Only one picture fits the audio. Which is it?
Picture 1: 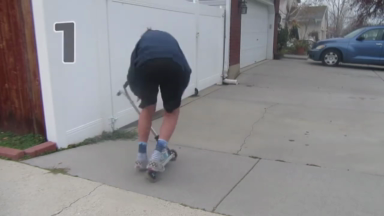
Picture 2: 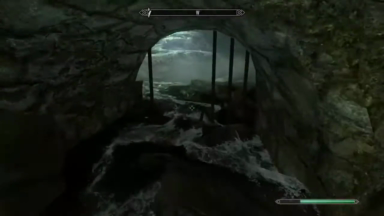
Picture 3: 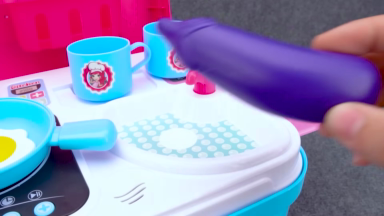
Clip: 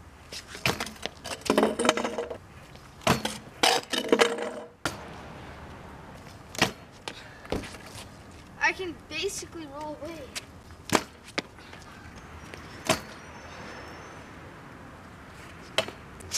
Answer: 1